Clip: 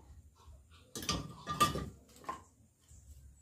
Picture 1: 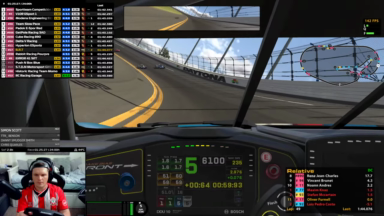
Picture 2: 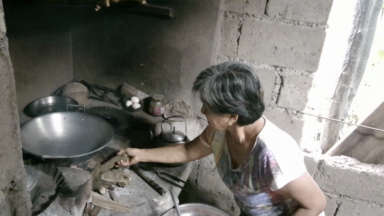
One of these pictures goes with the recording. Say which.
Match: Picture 2